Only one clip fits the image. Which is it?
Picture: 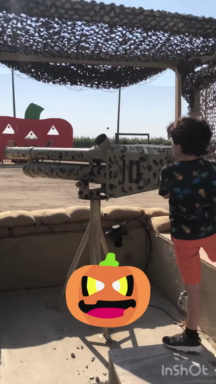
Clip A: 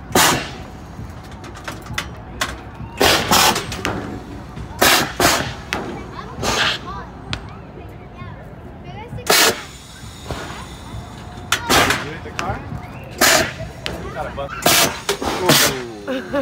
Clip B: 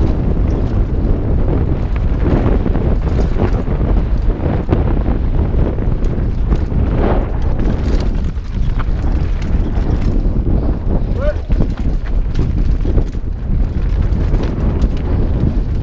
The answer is A